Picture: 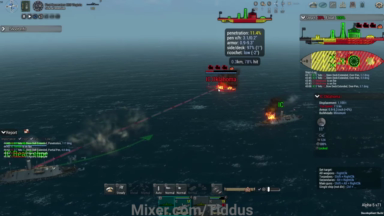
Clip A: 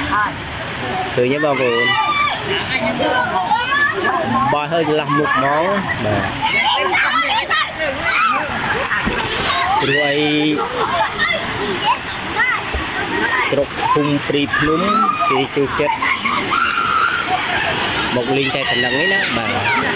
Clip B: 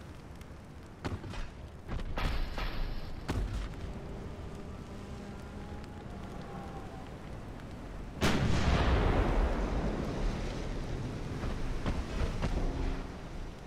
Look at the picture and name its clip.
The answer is B